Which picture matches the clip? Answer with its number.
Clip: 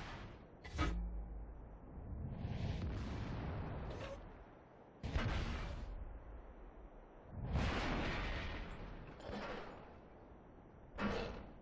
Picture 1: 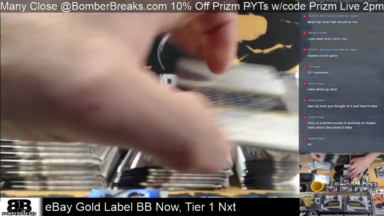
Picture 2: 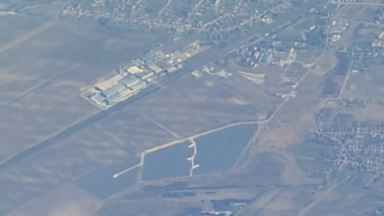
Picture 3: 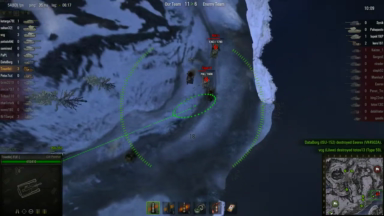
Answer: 3